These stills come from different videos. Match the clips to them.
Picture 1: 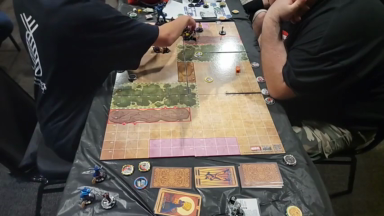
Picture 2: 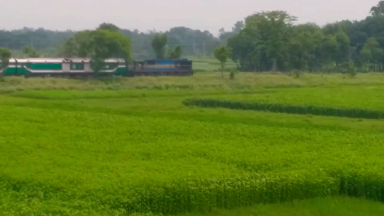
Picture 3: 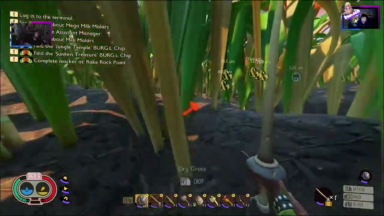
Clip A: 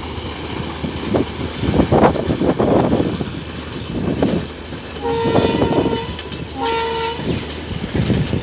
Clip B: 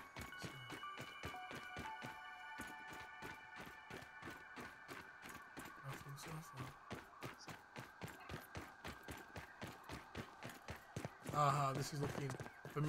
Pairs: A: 2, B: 3